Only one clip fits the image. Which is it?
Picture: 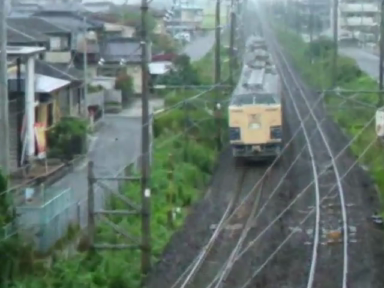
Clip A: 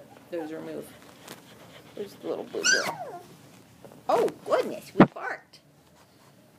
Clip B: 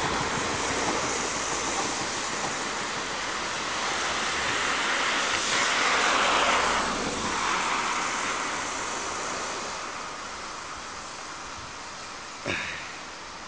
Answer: B